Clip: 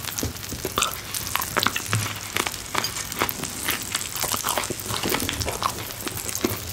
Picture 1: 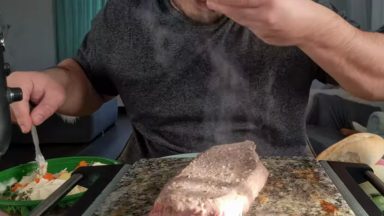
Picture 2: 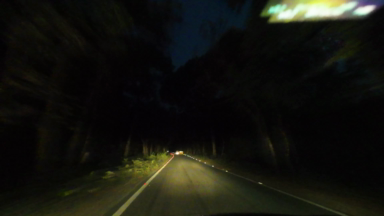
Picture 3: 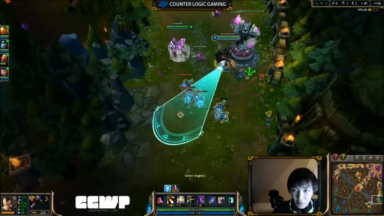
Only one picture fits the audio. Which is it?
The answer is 1